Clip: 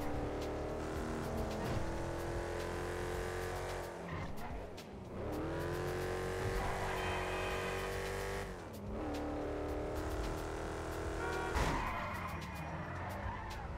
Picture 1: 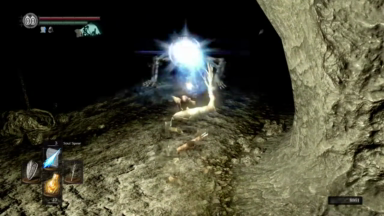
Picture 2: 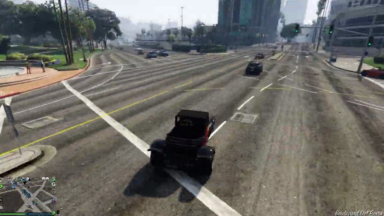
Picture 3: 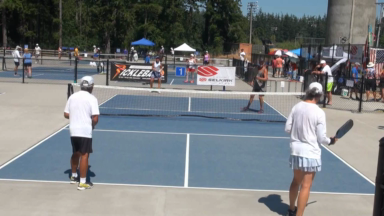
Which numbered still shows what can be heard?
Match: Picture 2